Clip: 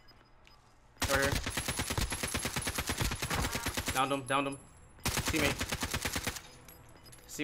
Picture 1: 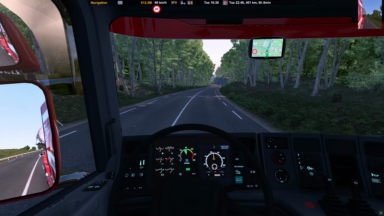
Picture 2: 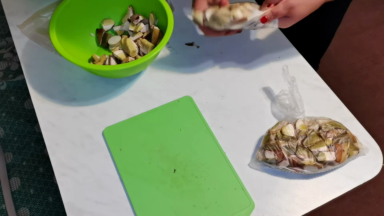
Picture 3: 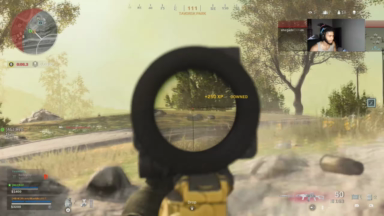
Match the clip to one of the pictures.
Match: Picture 3